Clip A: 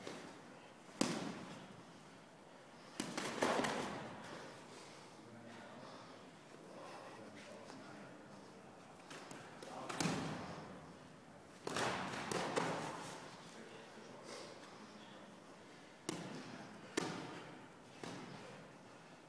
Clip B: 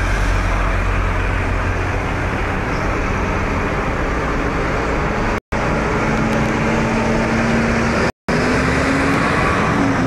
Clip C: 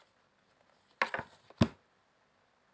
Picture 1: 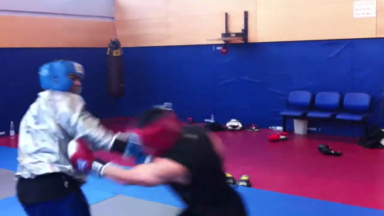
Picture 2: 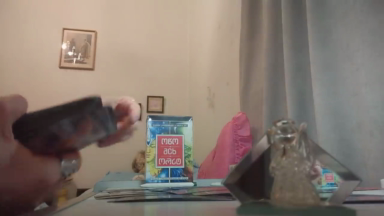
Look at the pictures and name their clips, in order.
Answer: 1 A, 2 C